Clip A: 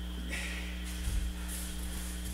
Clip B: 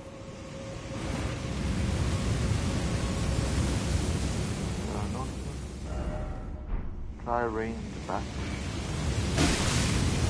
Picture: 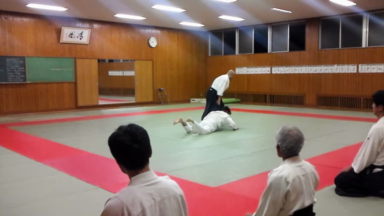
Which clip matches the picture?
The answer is A